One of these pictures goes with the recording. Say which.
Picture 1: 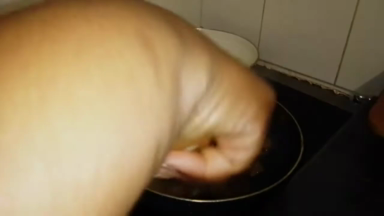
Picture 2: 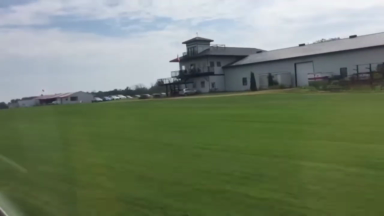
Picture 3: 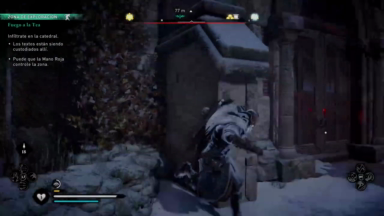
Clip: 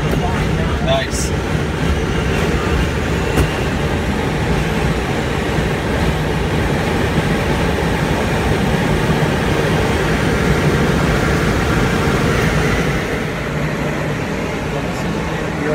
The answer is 2